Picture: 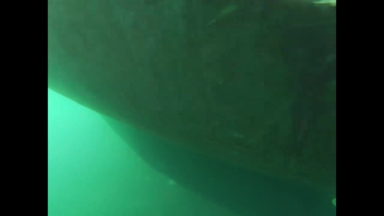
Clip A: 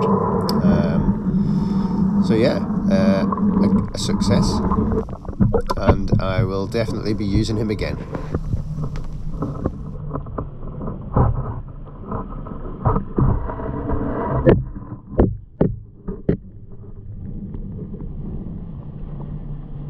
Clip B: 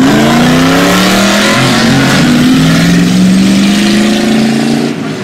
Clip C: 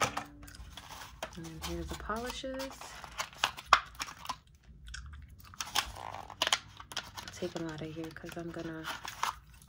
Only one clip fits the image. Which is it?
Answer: A